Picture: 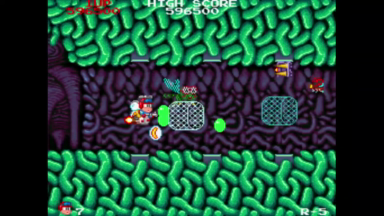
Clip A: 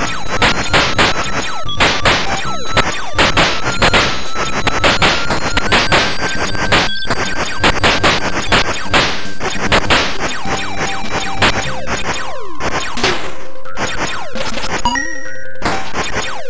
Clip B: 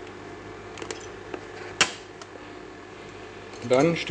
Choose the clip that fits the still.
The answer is A